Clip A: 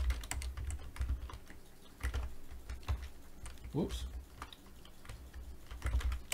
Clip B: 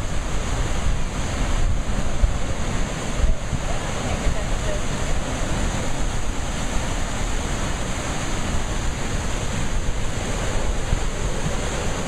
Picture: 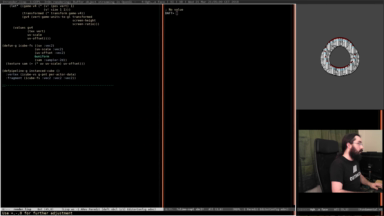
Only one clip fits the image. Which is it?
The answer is A